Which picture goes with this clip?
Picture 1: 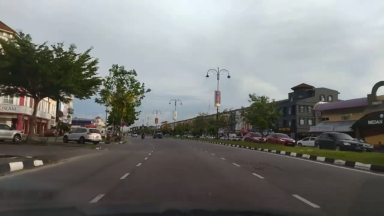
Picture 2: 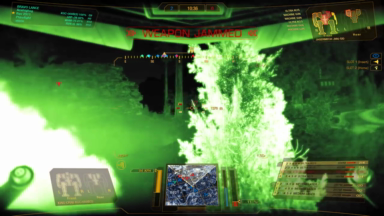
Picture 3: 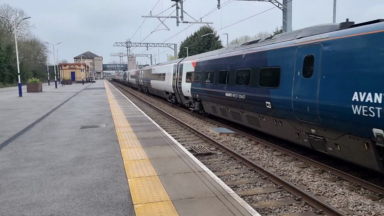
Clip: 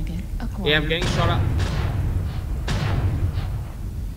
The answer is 2